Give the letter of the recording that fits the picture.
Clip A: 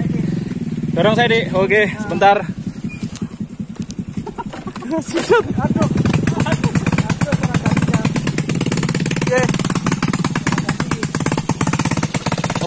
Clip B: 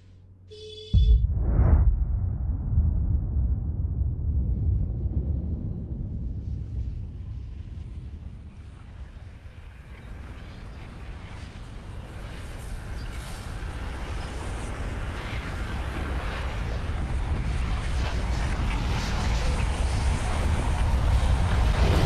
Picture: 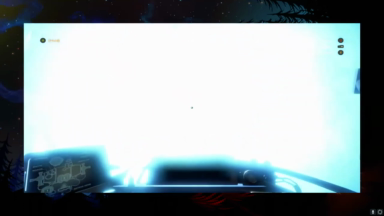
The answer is B